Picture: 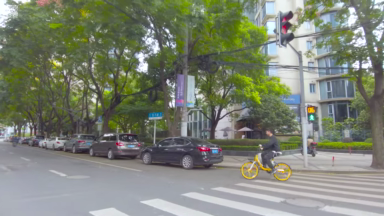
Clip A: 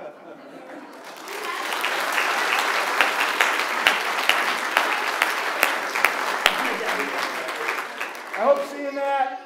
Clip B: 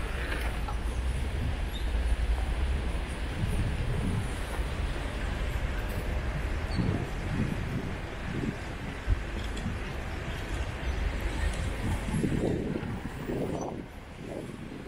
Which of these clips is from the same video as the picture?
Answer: B